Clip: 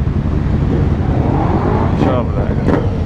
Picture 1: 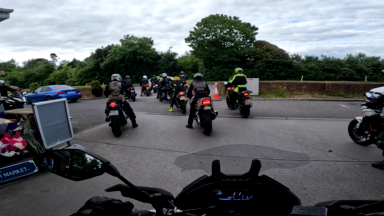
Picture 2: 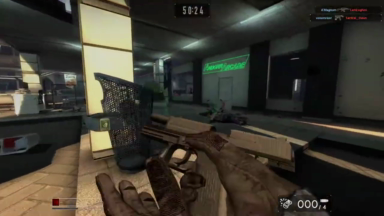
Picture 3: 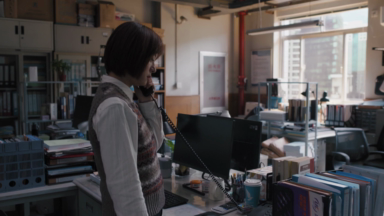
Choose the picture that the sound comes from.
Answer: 1